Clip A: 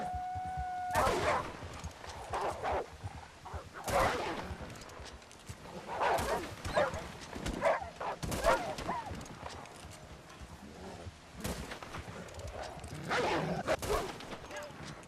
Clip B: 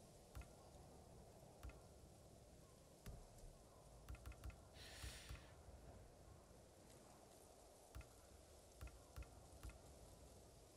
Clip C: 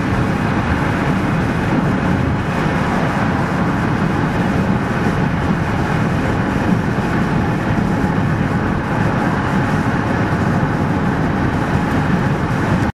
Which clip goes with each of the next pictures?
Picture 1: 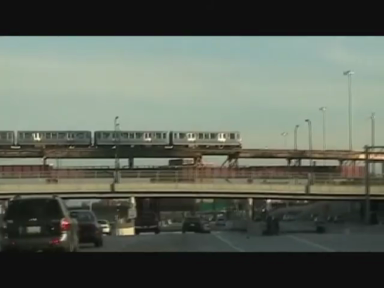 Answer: C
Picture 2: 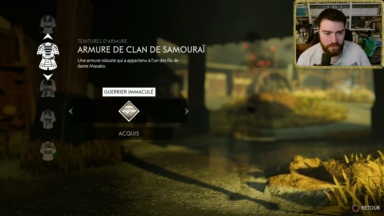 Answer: B